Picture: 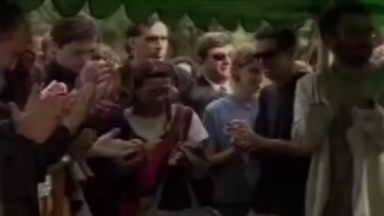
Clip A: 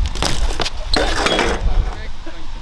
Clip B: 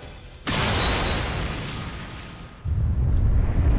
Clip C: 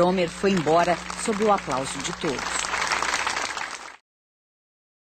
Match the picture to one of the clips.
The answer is C